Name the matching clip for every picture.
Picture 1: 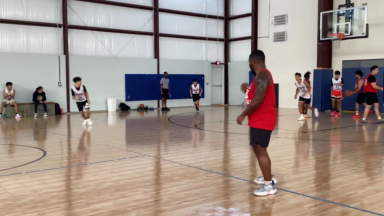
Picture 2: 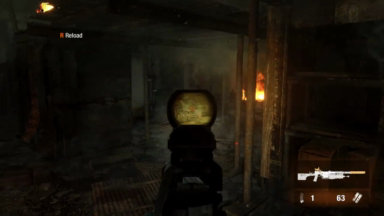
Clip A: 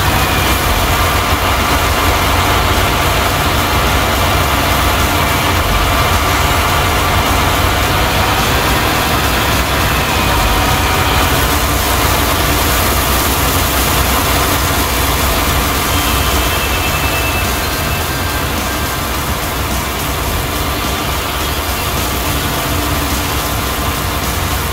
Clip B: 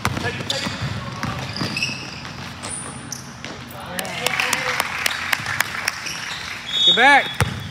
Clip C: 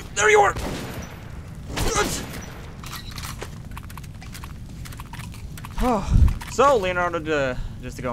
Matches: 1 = B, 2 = C